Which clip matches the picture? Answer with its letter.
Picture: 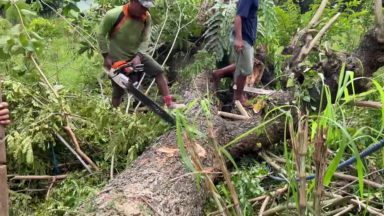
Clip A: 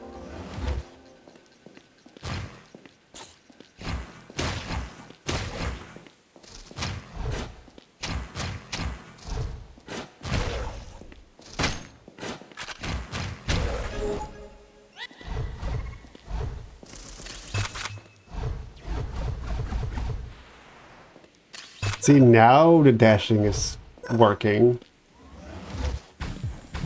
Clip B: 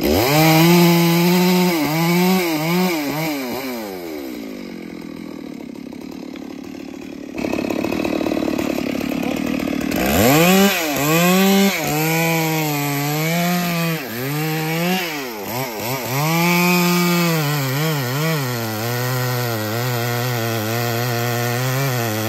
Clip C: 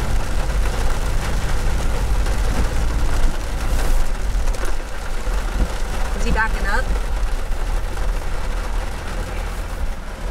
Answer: B